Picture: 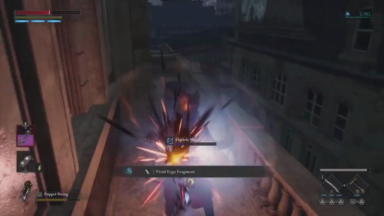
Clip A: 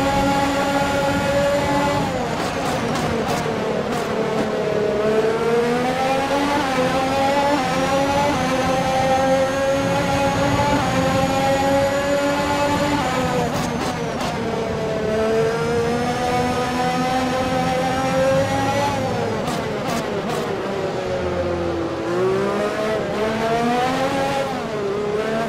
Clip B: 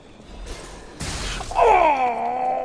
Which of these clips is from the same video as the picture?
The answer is B